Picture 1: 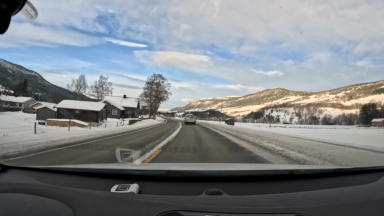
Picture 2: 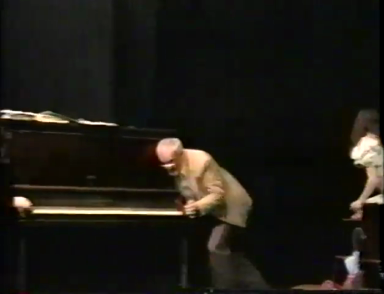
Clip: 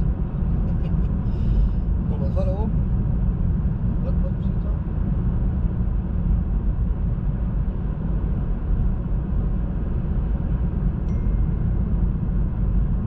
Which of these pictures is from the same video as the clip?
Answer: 1